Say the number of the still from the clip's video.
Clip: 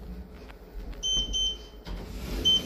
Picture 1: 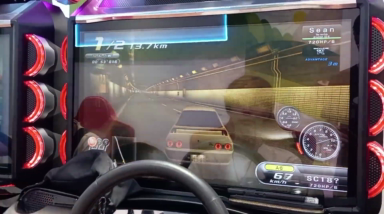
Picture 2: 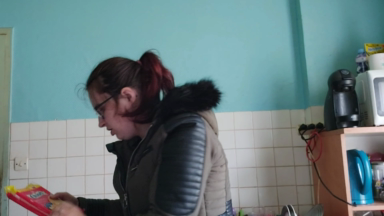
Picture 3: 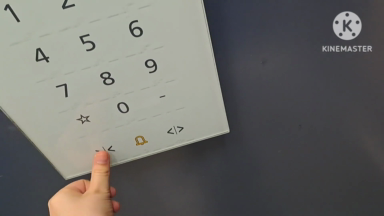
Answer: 3